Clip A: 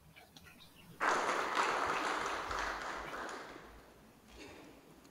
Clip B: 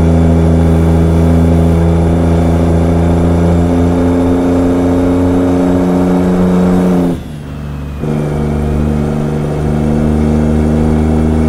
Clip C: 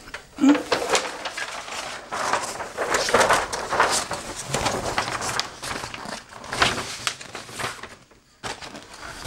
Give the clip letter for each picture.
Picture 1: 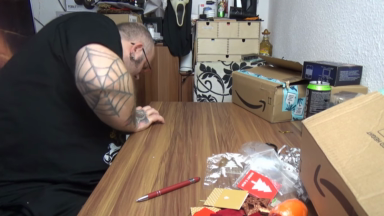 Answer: C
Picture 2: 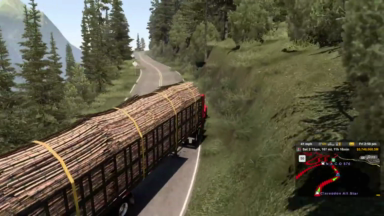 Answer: B